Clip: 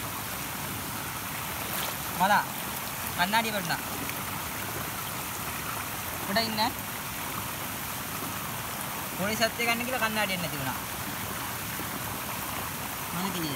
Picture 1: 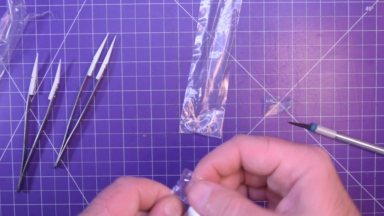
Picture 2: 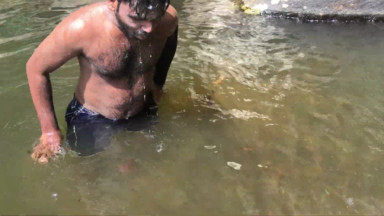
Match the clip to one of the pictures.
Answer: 2